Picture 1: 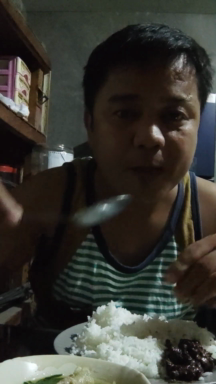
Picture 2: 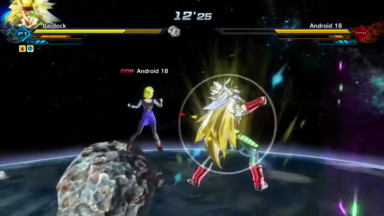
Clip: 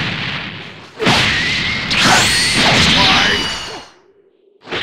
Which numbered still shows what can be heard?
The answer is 2